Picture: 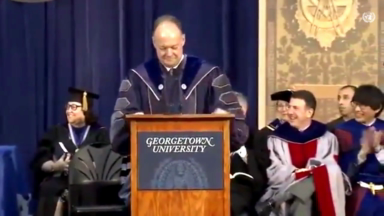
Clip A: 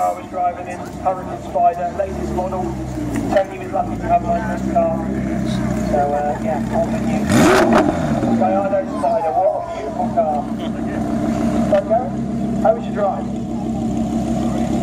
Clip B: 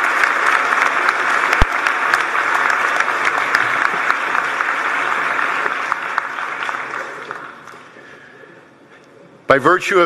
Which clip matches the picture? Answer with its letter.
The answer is B